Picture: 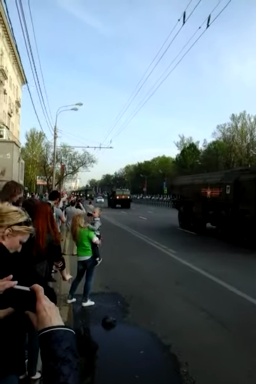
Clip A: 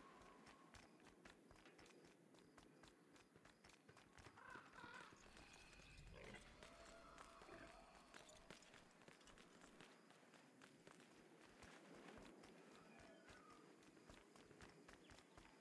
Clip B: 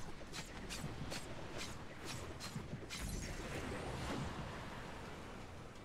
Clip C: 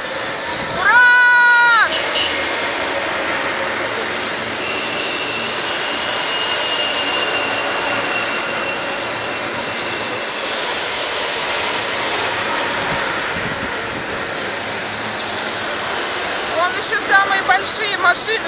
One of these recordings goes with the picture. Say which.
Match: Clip C